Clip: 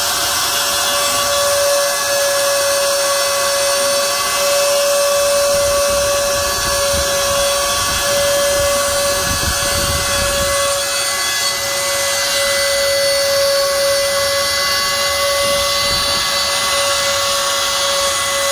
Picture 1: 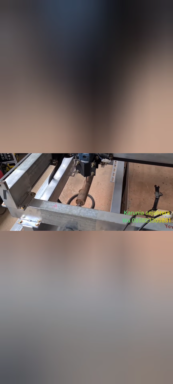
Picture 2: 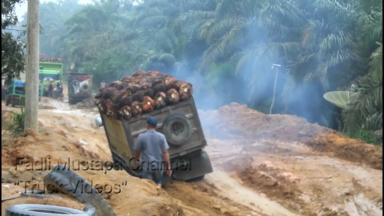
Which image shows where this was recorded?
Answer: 1